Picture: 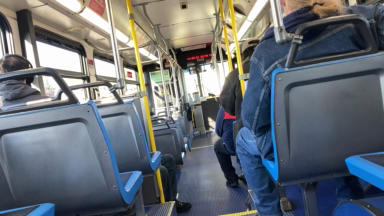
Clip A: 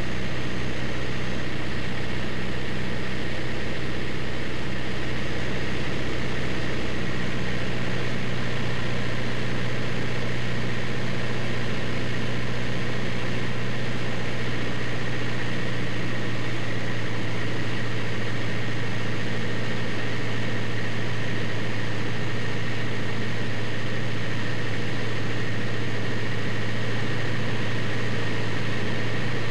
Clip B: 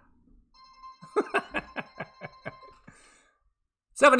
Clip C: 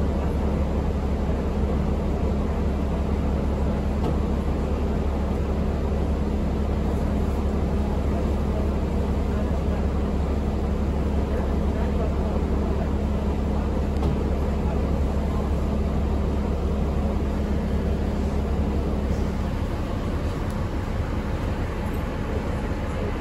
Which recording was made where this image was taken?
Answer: C